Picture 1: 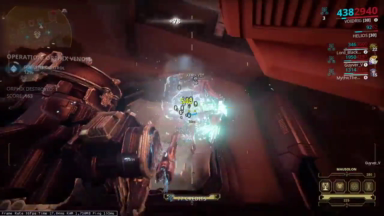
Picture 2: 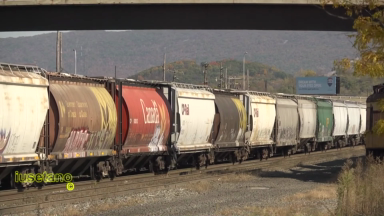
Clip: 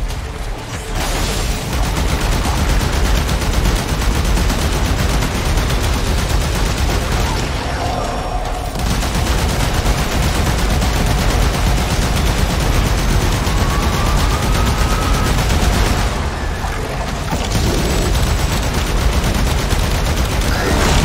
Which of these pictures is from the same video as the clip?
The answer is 1